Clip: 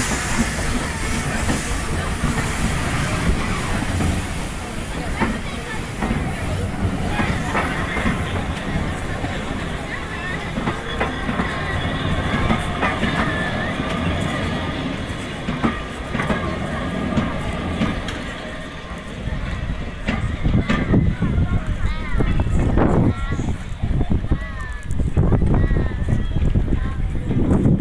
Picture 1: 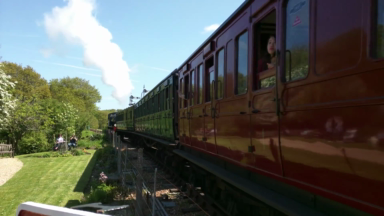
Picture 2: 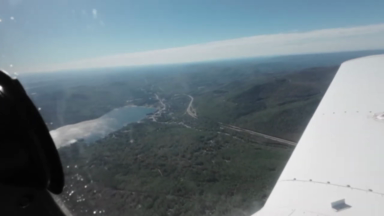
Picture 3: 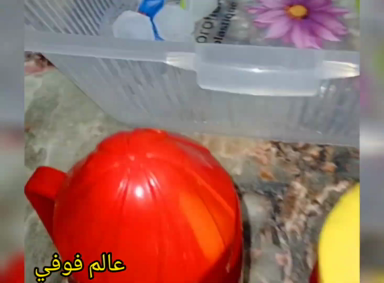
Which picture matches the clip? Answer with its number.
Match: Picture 1